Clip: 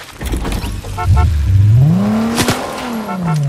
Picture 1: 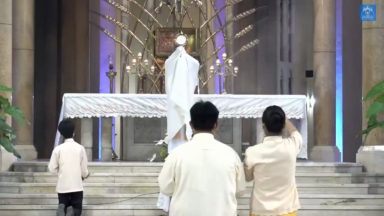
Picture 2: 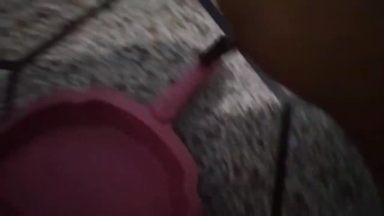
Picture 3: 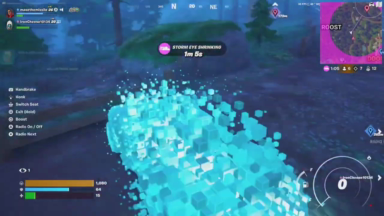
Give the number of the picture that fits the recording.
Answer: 3